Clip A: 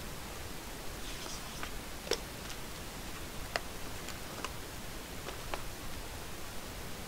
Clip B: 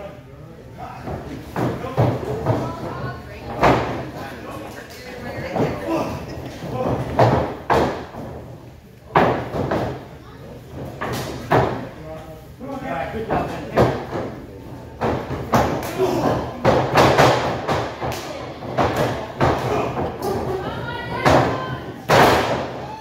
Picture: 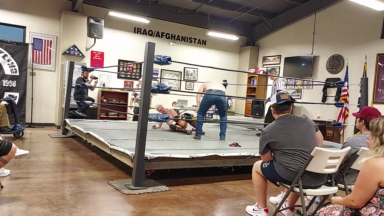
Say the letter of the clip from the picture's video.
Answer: B